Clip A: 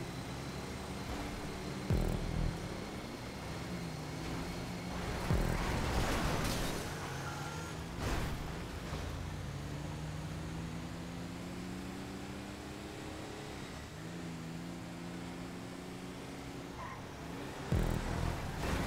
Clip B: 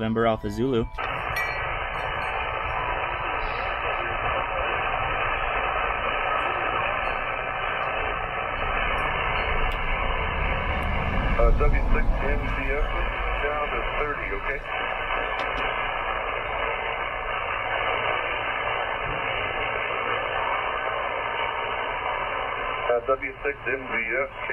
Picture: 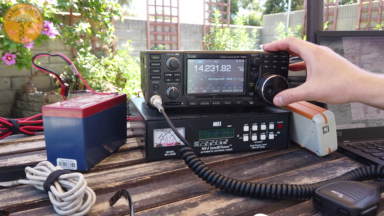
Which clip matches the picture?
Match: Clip B